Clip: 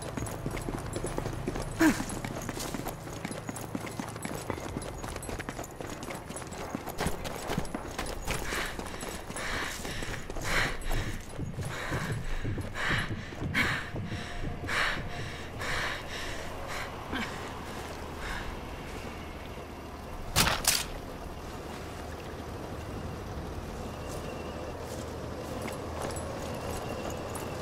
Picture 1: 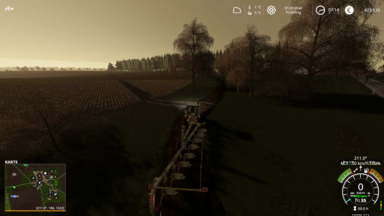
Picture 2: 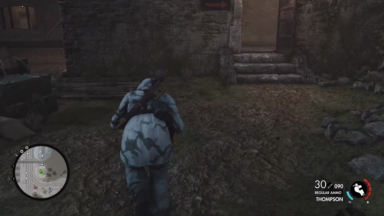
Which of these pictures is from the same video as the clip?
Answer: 2